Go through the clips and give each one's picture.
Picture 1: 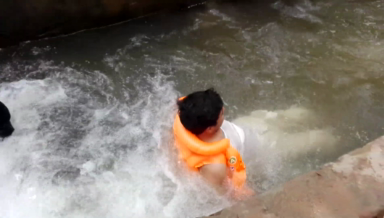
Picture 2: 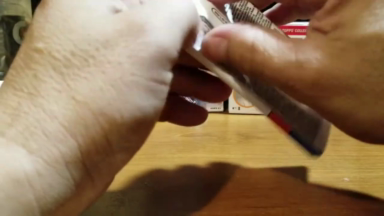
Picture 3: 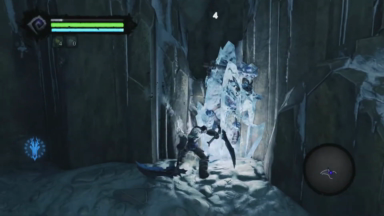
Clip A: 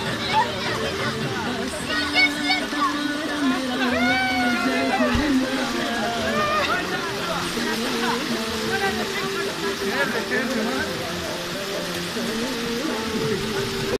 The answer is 1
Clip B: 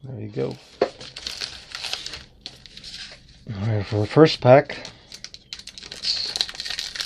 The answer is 2